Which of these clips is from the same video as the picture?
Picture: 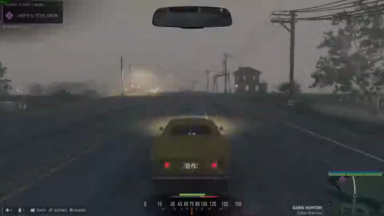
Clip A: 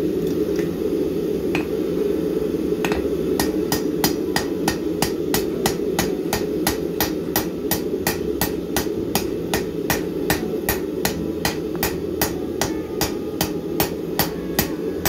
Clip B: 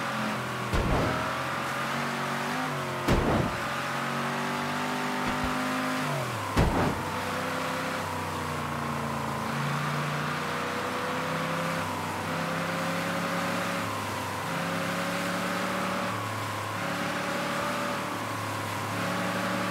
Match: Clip B